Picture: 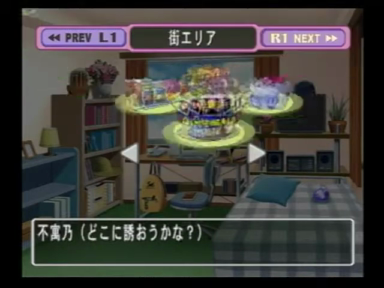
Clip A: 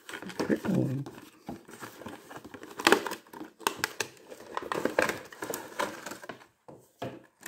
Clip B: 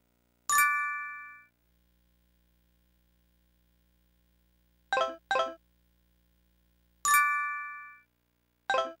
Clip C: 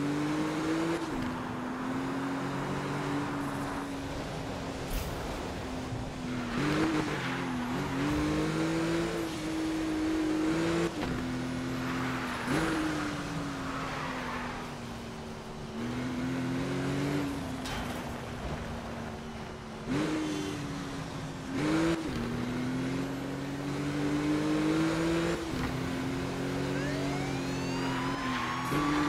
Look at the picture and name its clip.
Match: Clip B